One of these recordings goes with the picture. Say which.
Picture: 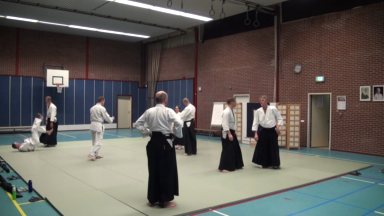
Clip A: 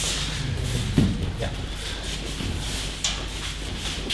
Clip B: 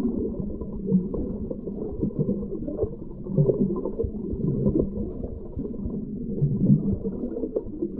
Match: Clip A